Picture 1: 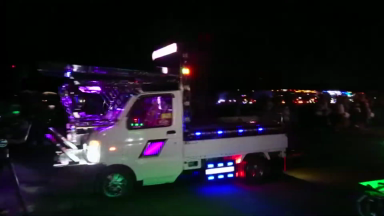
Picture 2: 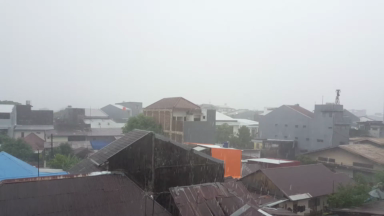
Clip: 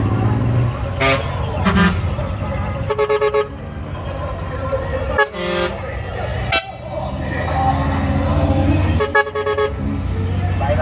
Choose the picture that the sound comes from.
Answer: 1